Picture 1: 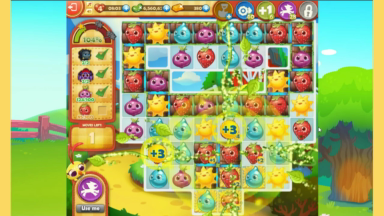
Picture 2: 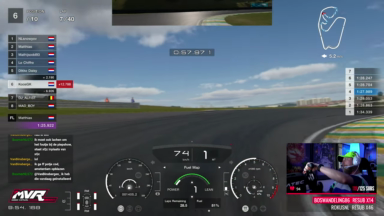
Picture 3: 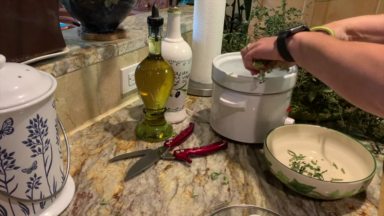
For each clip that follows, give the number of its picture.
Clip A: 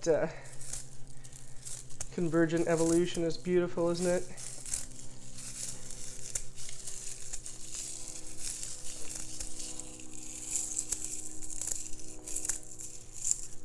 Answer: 3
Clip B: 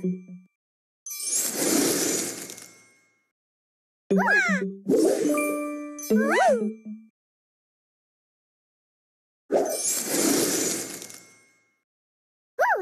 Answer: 1